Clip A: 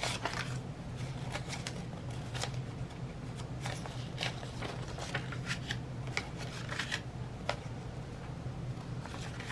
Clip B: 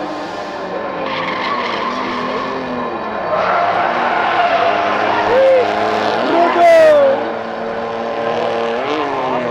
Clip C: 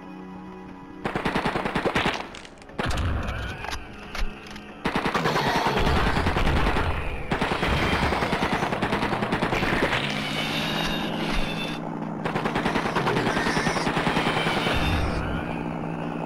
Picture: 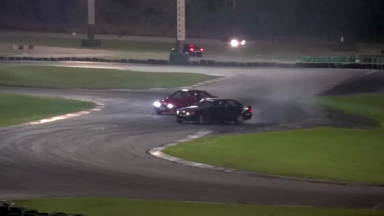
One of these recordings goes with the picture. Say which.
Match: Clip B